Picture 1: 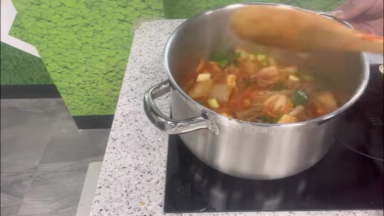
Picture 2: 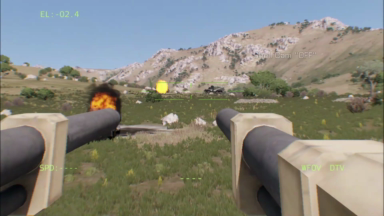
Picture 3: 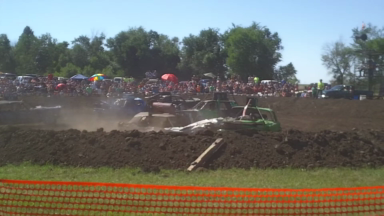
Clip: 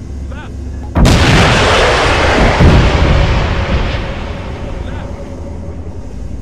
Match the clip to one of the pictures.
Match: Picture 2